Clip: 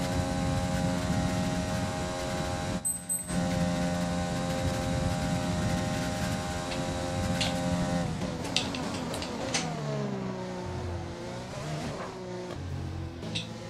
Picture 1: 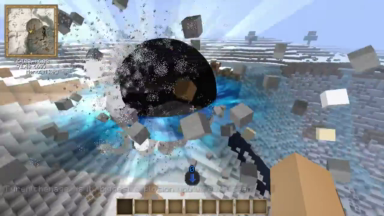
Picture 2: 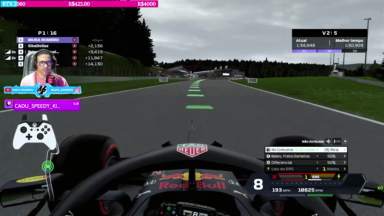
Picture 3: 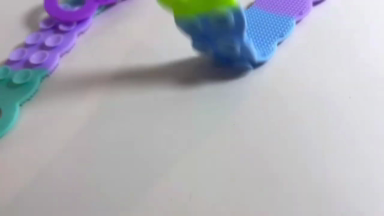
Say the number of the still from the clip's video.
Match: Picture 2